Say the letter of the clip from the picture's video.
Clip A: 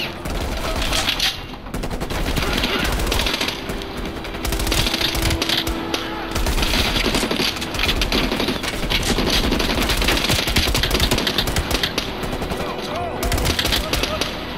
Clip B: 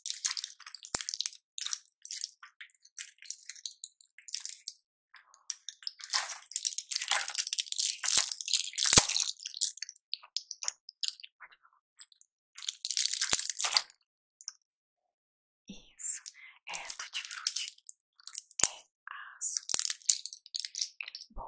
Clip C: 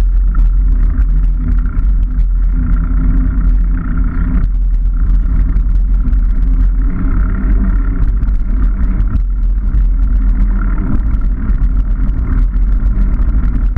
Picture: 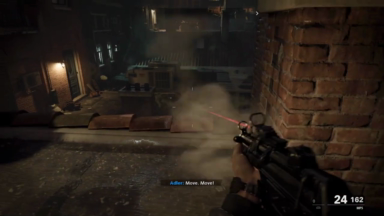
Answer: A